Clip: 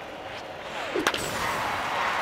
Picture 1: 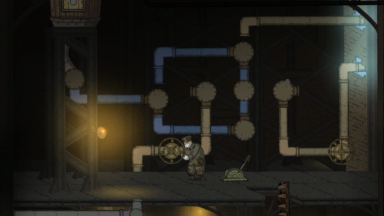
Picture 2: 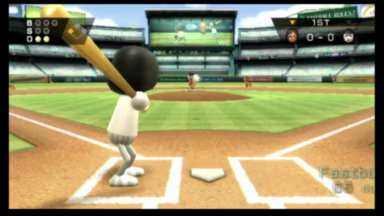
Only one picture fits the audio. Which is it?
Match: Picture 2